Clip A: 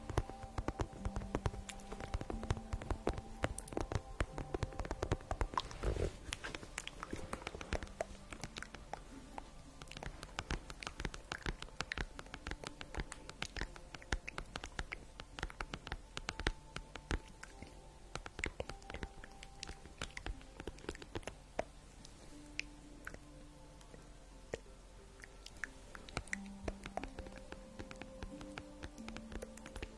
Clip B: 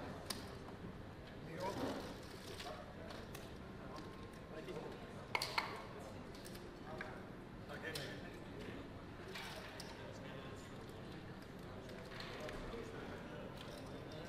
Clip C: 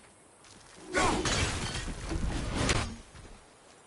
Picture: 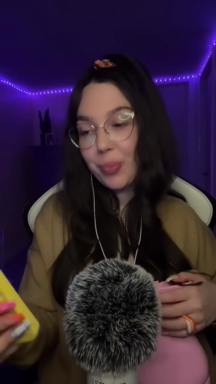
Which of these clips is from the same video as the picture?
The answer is A